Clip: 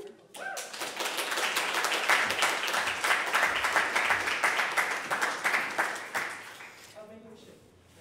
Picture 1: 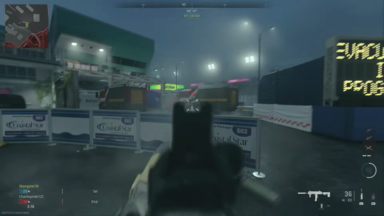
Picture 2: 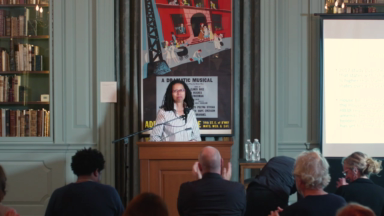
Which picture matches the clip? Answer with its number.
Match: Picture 2